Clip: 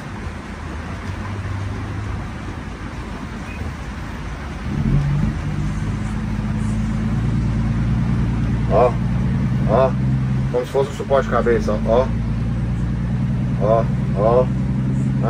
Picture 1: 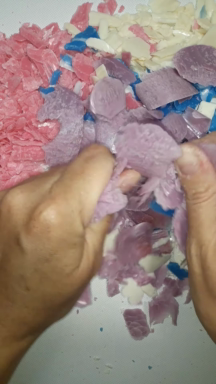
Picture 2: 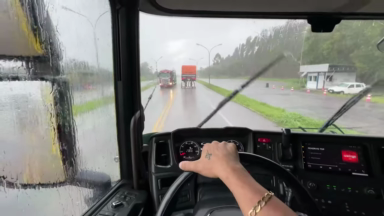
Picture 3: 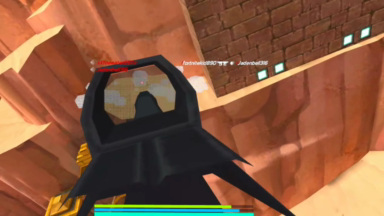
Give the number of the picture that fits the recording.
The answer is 2